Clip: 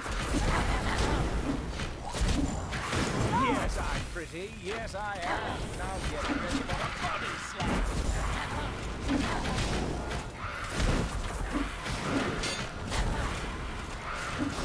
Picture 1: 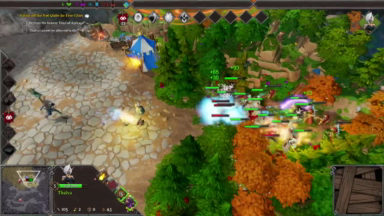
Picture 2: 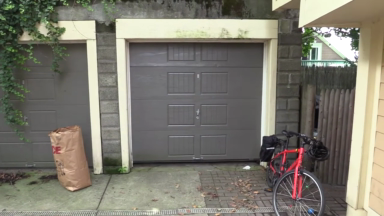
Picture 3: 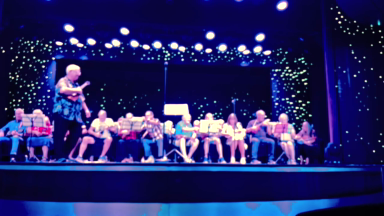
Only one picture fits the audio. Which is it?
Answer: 1